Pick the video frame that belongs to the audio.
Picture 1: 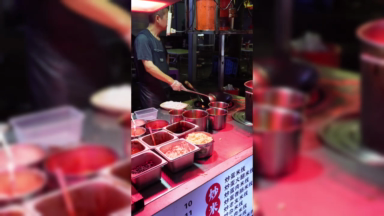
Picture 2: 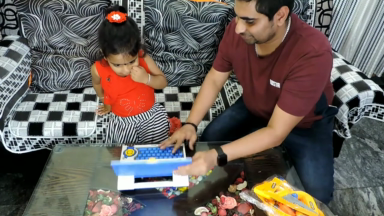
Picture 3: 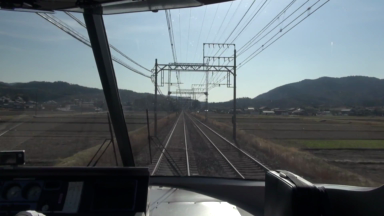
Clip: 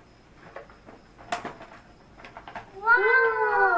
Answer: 2